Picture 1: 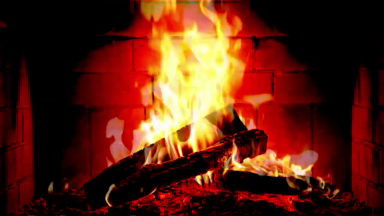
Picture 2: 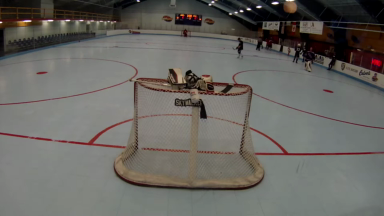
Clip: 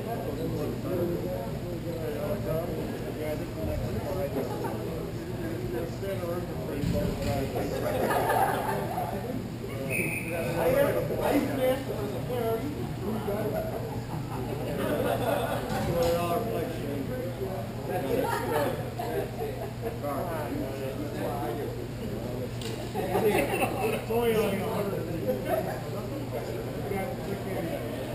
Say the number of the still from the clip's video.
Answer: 2